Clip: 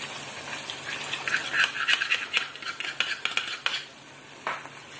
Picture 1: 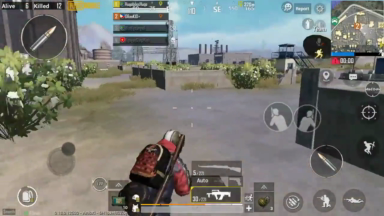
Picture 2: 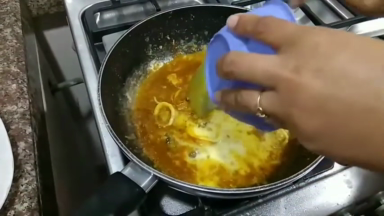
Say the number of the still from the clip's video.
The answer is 2